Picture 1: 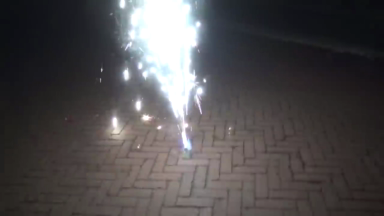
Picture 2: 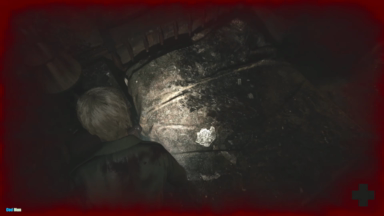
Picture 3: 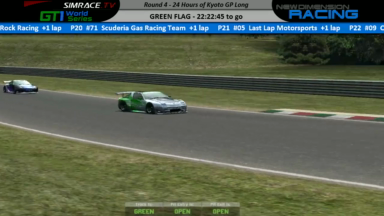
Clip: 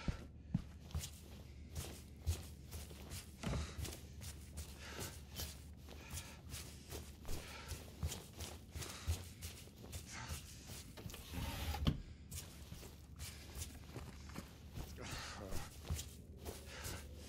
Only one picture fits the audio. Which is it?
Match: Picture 2